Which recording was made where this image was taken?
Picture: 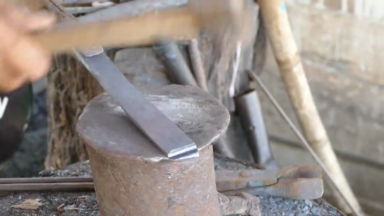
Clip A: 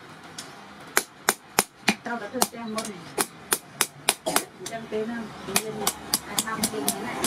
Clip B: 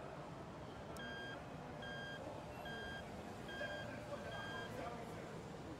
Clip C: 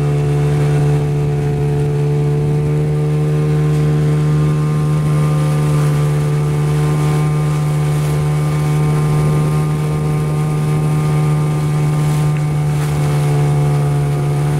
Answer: A